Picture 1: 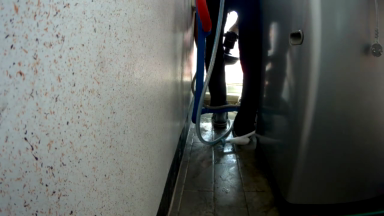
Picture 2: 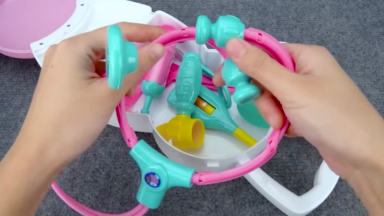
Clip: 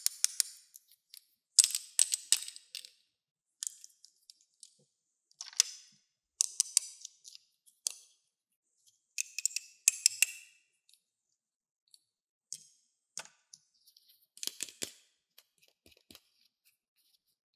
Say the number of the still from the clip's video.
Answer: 2